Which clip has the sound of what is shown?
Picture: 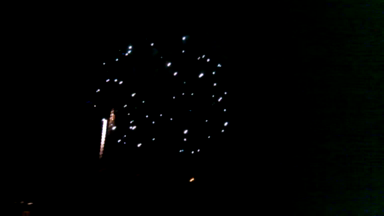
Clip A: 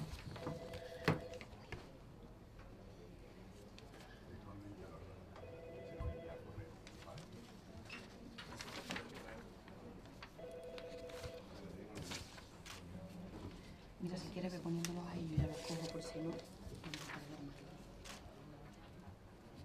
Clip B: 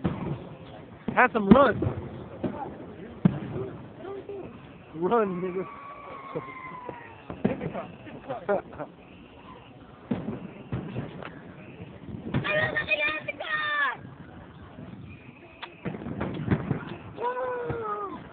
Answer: B